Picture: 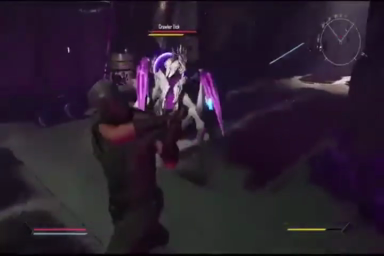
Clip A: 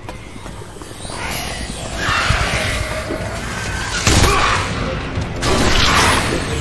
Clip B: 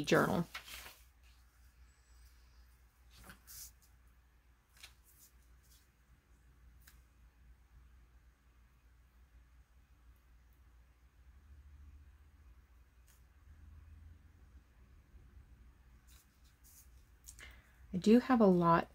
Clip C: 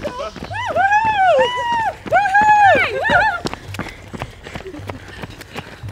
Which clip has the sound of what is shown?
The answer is A